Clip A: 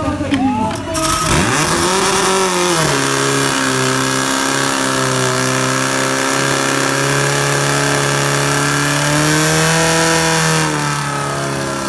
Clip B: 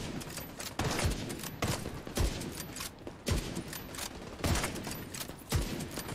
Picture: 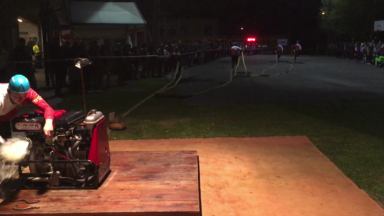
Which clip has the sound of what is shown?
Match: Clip A